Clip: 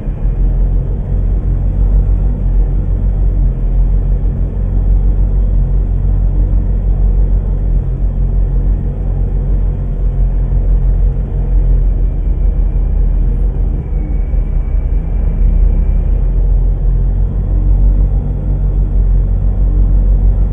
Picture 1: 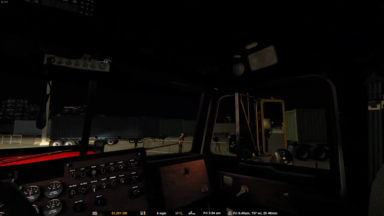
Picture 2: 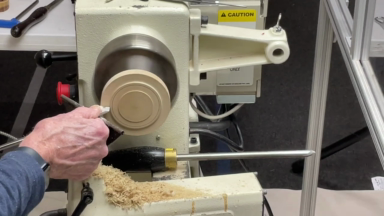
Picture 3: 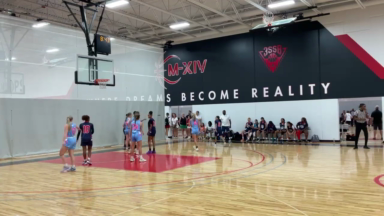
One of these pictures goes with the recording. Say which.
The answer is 1